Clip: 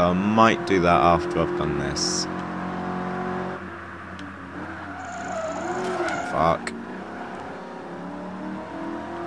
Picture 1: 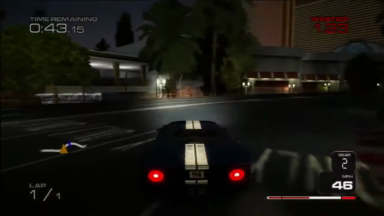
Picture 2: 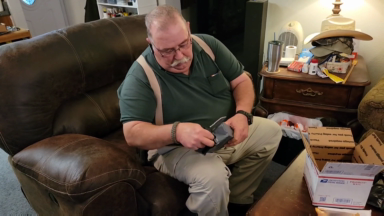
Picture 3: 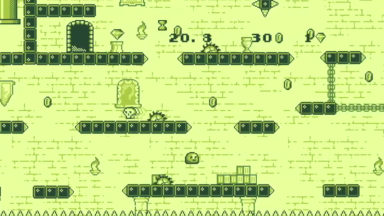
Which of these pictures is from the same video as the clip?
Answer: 1